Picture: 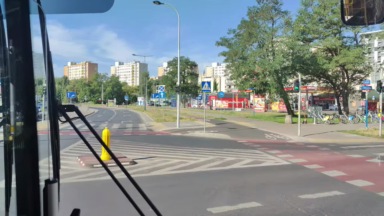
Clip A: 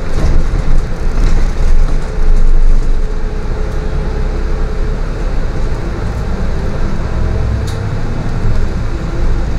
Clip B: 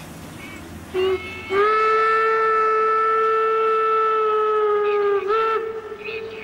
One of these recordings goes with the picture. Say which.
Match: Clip A